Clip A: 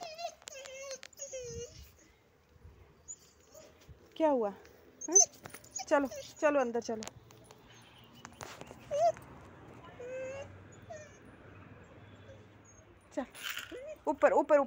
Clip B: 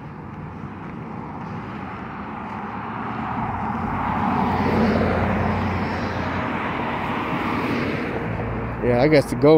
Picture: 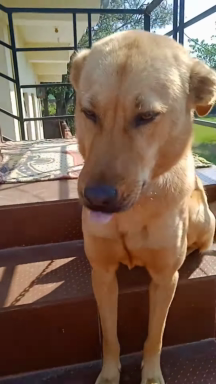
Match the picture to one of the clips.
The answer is A